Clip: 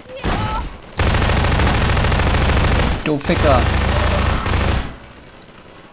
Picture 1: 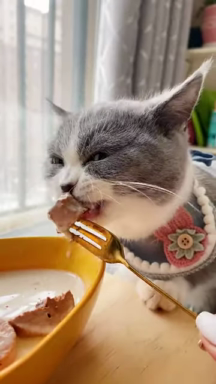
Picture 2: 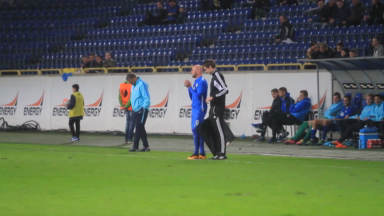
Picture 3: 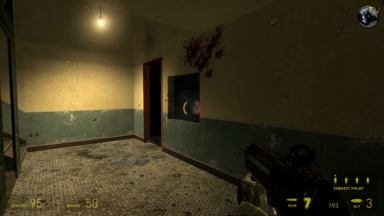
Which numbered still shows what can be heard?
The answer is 3